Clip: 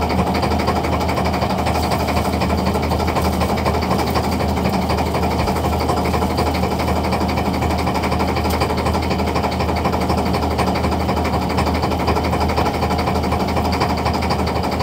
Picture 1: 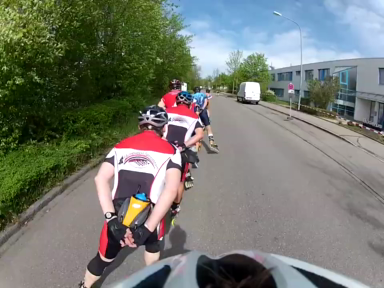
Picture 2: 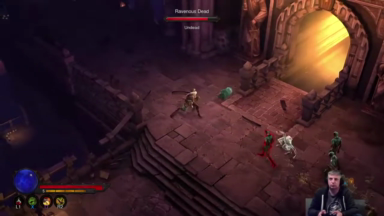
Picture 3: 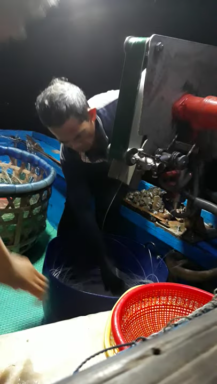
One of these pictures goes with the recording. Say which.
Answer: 3